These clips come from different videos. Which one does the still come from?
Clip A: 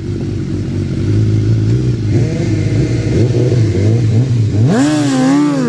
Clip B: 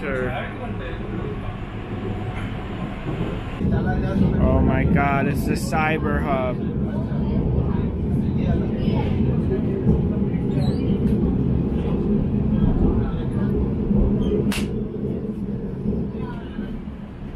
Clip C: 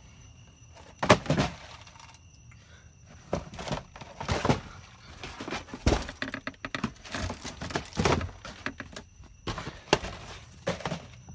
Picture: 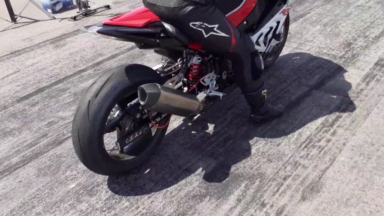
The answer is A